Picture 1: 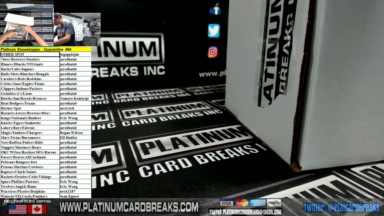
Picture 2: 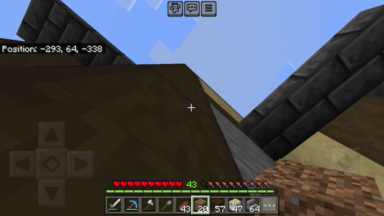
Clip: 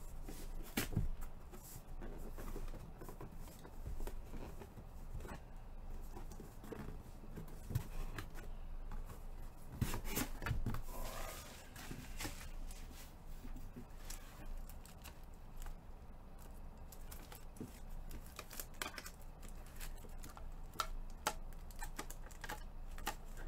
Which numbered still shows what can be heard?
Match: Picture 1